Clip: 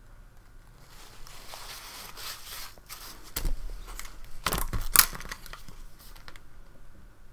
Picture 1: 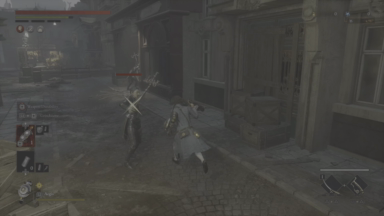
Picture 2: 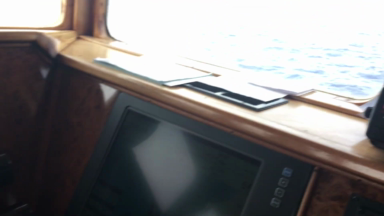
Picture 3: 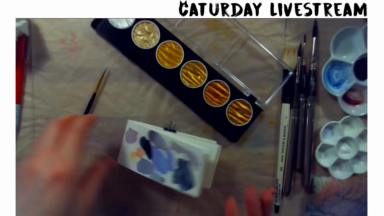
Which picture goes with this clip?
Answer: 3